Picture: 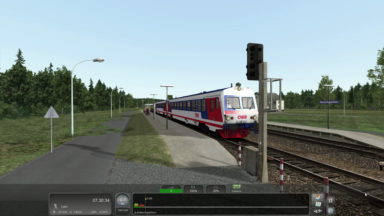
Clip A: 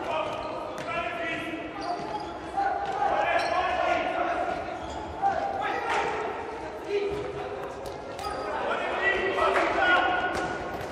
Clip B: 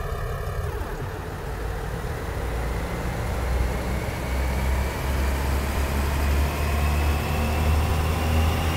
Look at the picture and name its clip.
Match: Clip B